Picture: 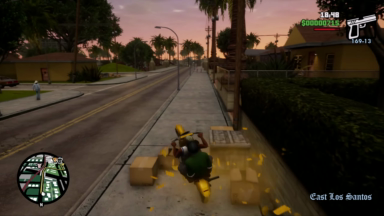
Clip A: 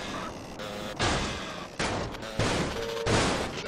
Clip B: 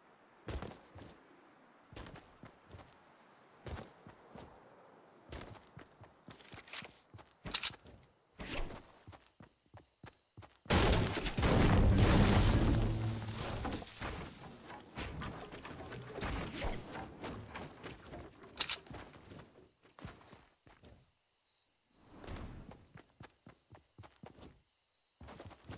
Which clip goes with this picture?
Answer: A